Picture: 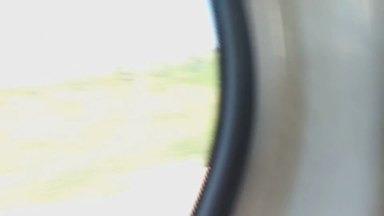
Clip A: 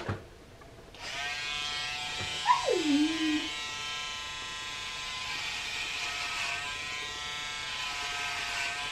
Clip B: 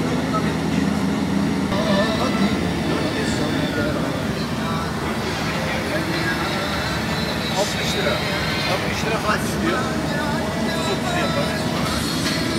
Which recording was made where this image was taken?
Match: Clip B